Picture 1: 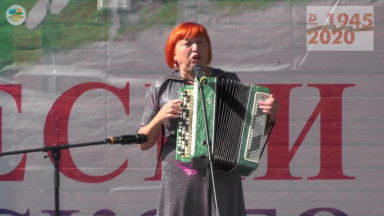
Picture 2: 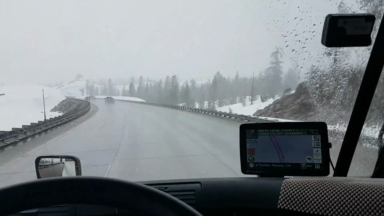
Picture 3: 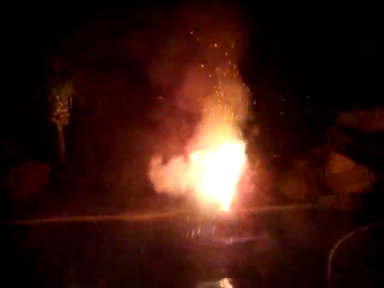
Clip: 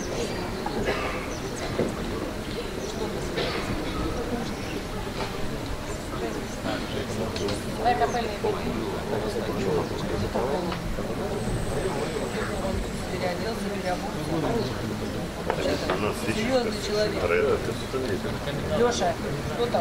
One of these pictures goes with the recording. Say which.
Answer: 1